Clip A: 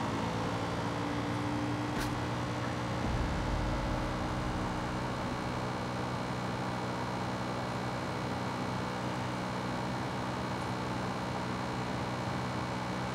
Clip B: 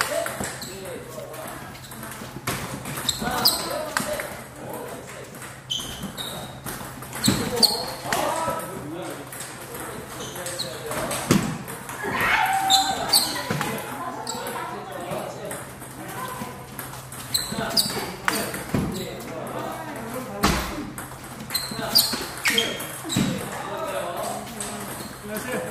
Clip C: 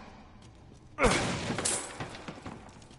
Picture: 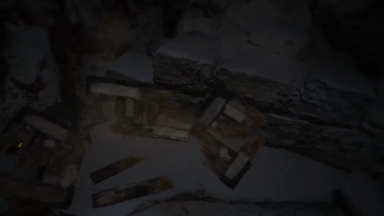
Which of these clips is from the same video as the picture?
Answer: C